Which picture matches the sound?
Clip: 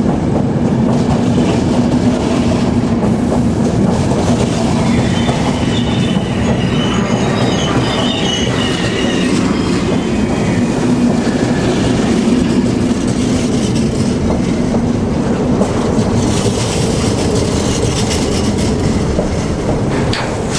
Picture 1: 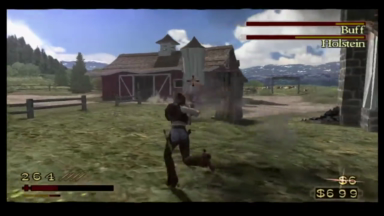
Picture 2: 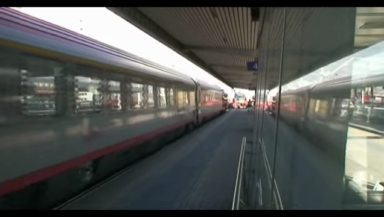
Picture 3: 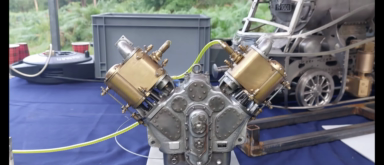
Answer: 2